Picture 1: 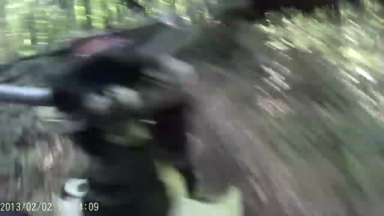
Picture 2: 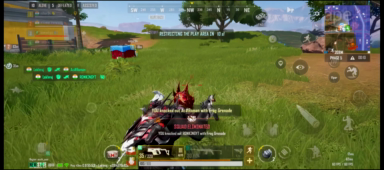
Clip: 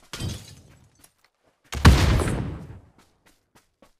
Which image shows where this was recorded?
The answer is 2